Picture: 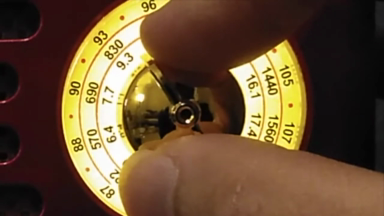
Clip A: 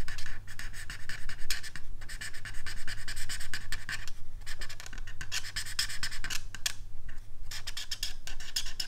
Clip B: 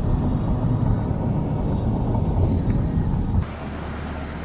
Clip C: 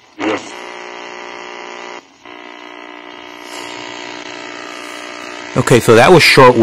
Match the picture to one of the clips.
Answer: C